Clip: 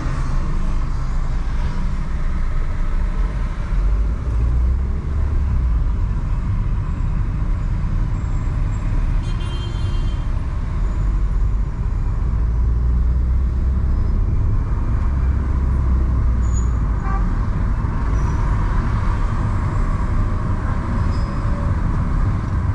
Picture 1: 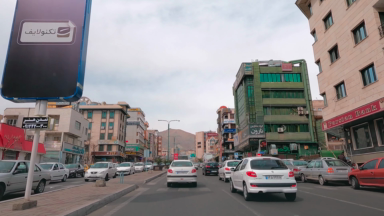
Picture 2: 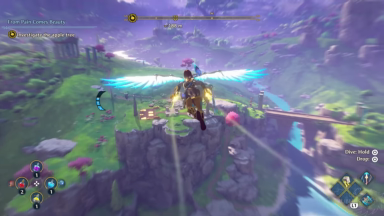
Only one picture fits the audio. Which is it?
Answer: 1